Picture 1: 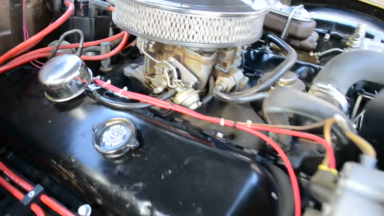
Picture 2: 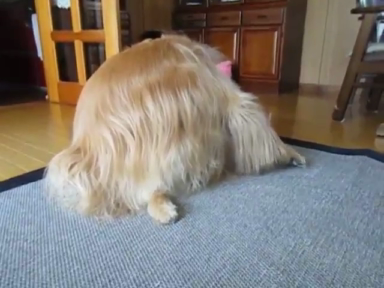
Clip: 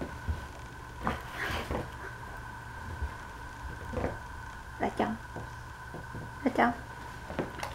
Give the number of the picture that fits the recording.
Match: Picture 2